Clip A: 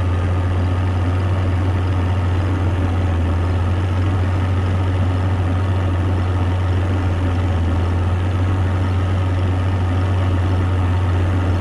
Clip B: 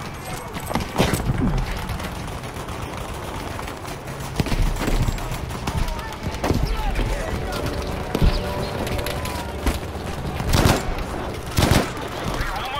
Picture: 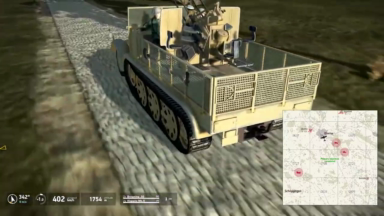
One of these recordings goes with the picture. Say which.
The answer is A